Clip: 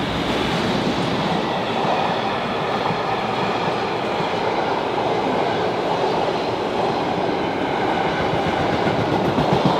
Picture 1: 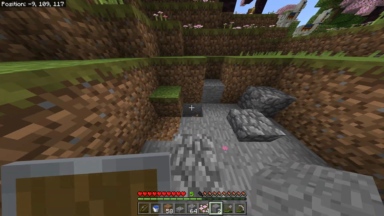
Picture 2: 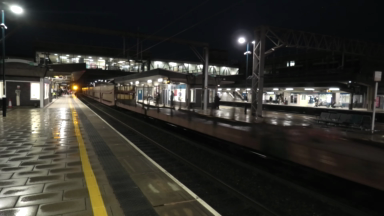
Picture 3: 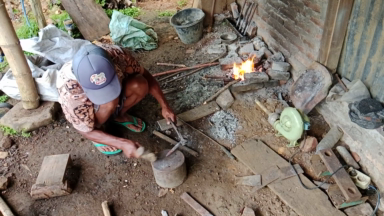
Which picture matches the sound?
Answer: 2